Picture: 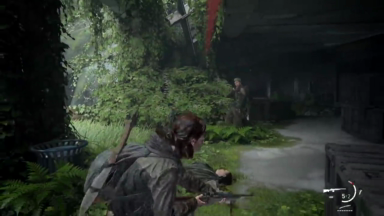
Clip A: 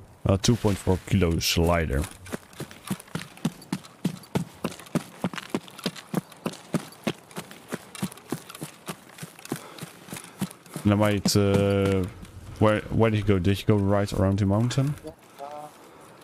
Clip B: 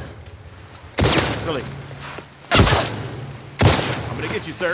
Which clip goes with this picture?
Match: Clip B